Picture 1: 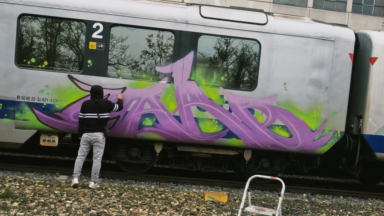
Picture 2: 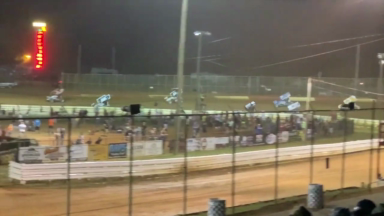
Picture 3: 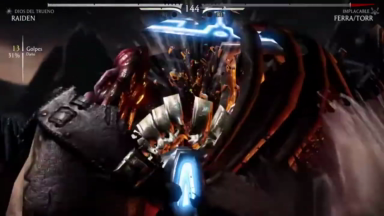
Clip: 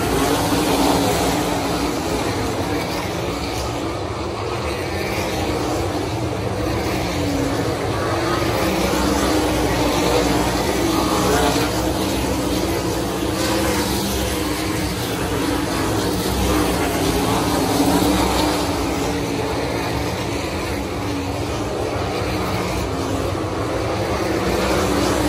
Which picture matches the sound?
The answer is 2